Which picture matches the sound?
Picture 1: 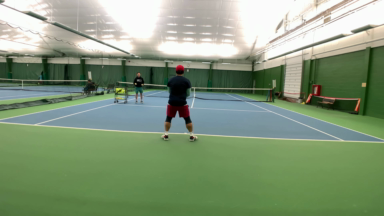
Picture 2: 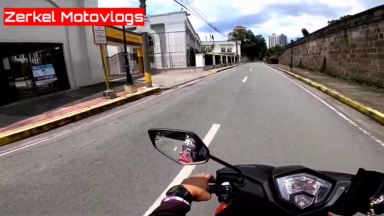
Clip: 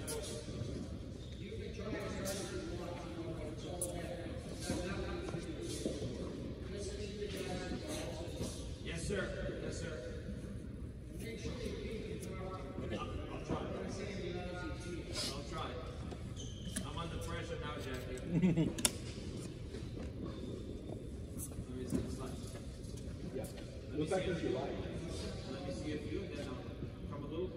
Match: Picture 1